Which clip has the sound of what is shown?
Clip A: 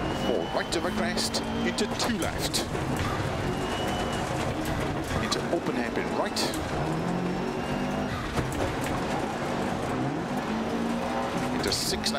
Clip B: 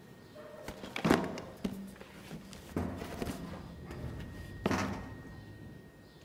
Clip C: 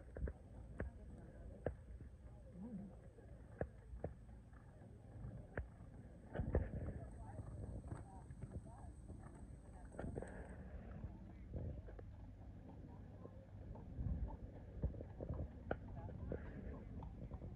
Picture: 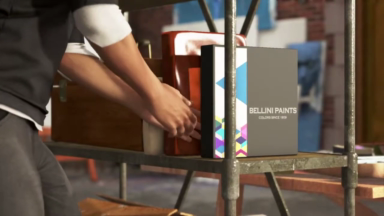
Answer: B